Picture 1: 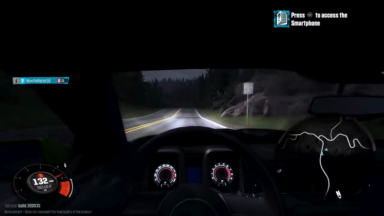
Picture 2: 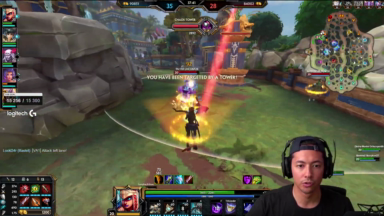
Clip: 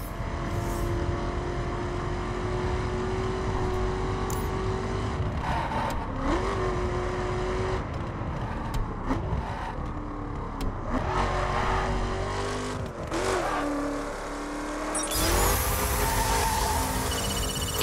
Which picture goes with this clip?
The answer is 1